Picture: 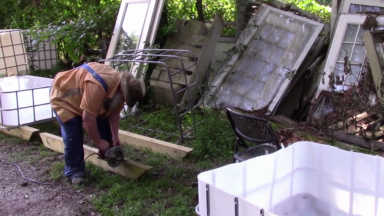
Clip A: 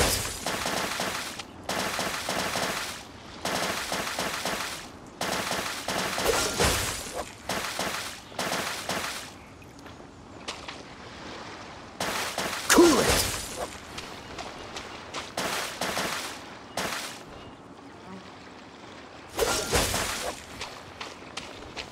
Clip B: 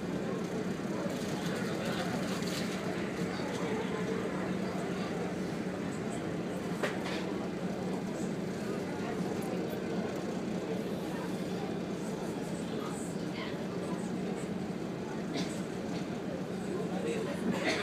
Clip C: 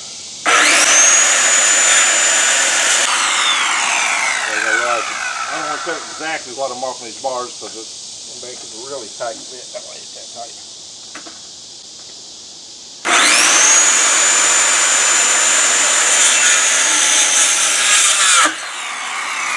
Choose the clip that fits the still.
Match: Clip C